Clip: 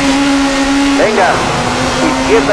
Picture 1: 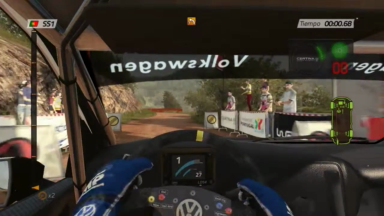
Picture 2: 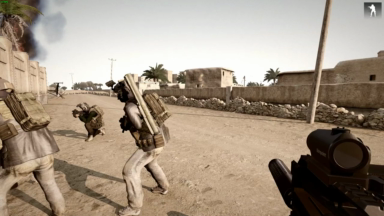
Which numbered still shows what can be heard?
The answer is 1